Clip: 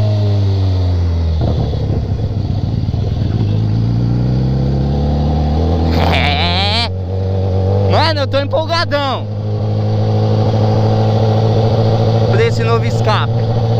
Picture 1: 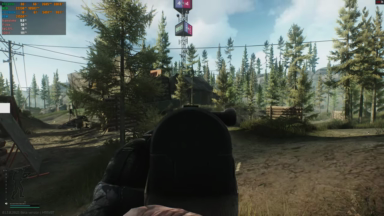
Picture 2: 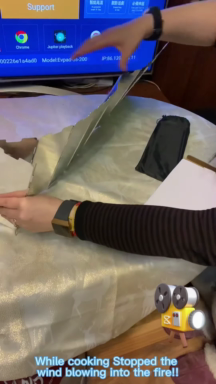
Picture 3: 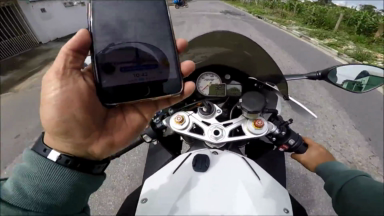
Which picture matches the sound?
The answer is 3